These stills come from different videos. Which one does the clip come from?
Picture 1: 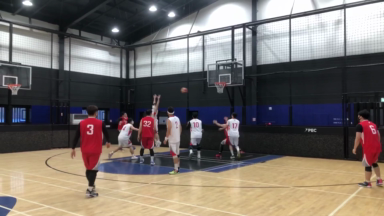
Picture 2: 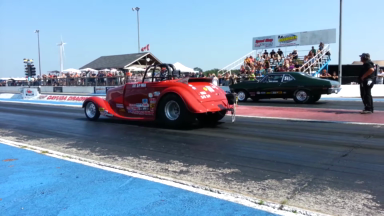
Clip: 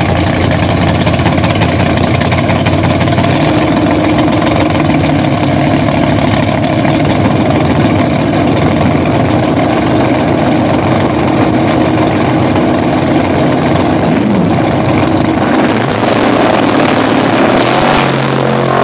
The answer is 2